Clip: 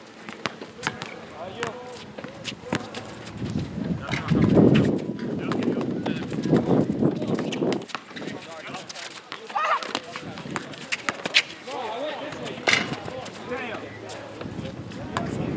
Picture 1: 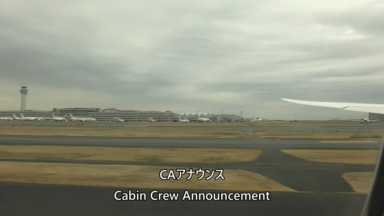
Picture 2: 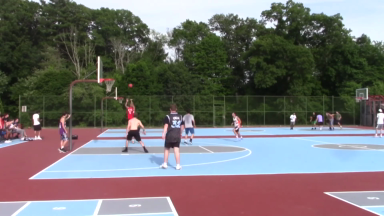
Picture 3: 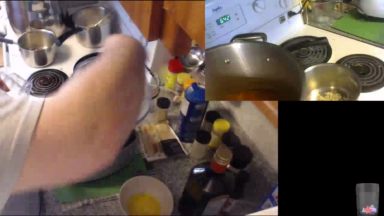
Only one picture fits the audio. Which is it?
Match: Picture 2